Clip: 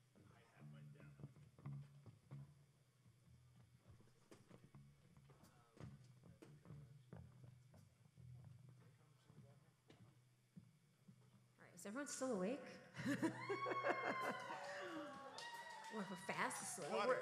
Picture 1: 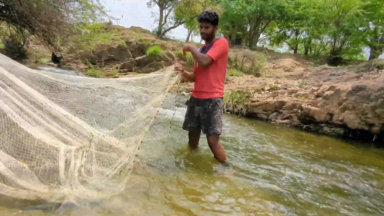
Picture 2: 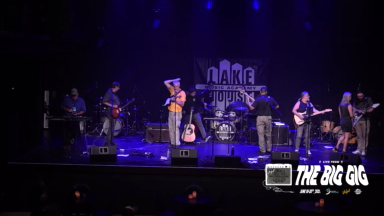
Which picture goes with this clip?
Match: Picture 2